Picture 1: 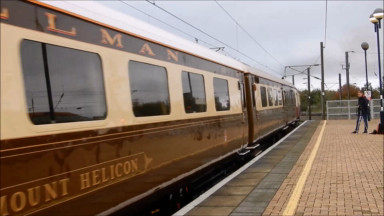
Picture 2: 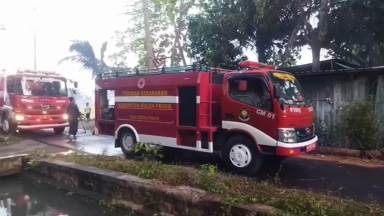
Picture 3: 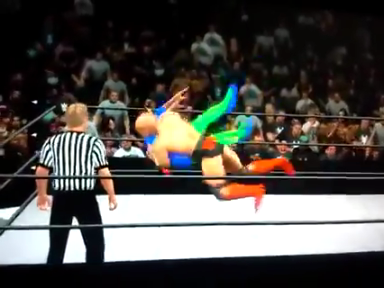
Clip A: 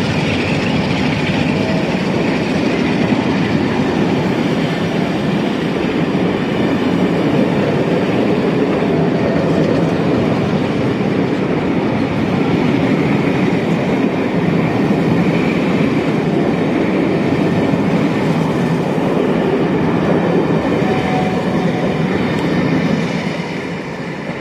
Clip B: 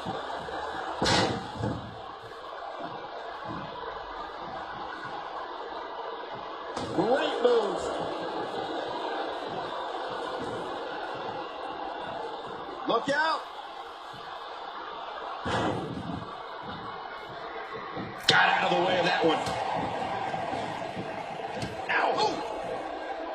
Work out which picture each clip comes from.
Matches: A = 1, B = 3